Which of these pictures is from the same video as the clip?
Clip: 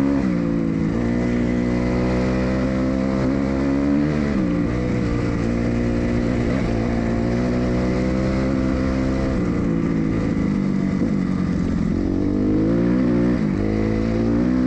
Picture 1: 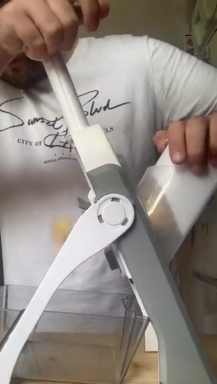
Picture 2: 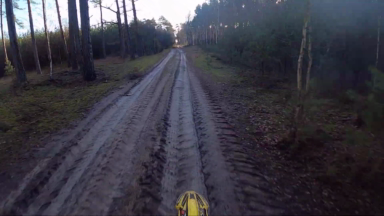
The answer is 2